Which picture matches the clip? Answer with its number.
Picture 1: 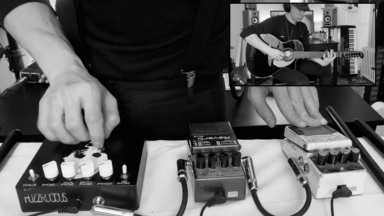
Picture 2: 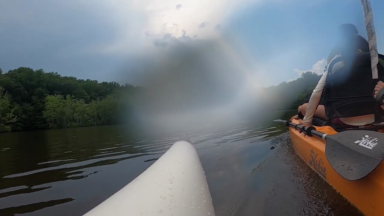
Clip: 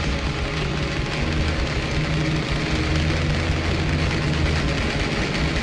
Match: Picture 1